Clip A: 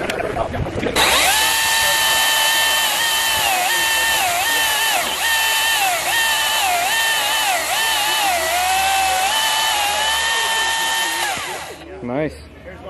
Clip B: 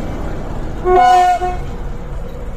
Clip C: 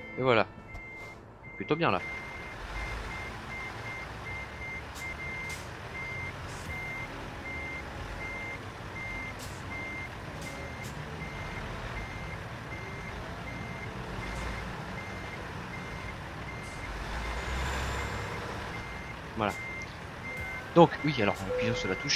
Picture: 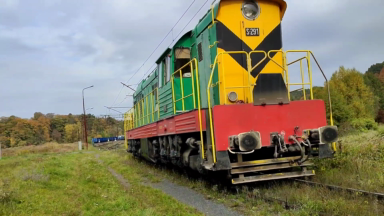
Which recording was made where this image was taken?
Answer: B